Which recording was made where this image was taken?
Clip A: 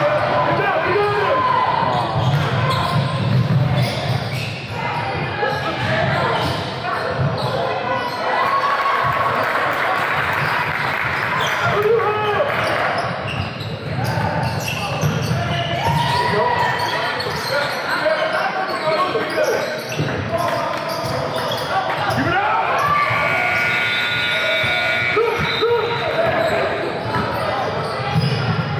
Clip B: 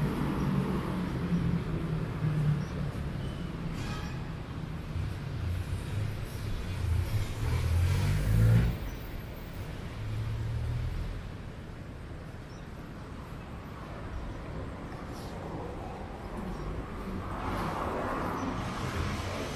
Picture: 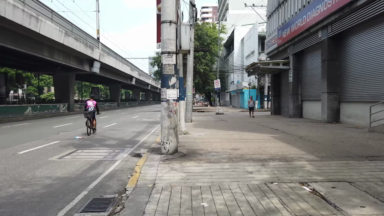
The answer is B